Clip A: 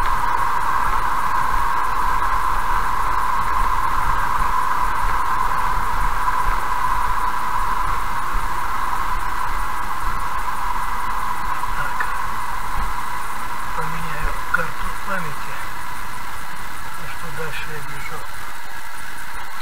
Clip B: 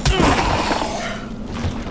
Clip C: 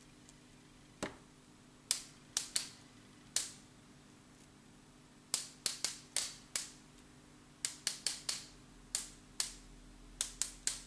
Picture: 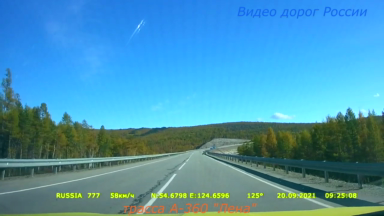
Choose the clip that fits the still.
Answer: A